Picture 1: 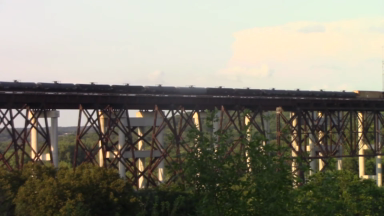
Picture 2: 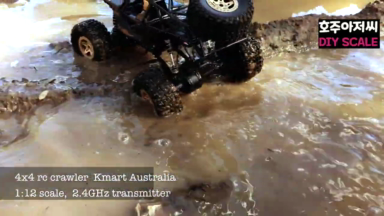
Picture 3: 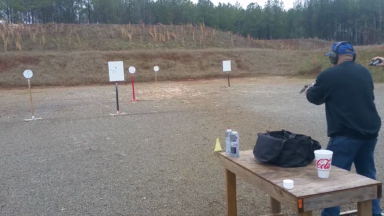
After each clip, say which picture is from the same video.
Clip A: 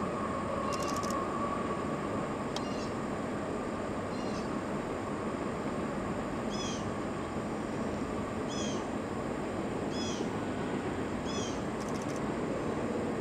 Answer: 1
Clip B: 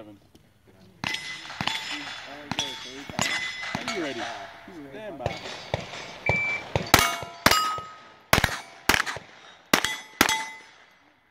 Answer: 3